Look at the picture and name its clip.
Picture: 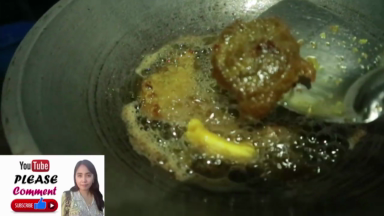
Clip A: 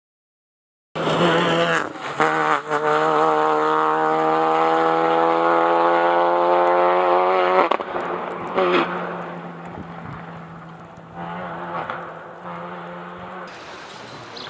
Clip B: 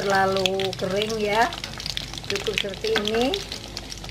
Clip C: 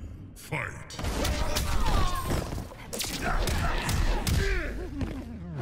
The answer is B